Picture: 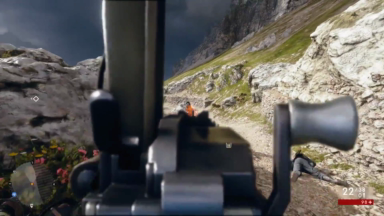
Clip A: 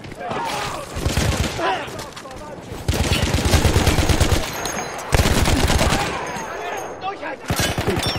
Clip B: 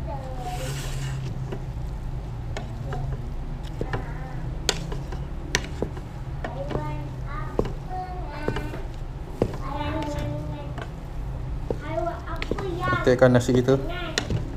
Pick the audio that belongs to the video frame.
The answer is A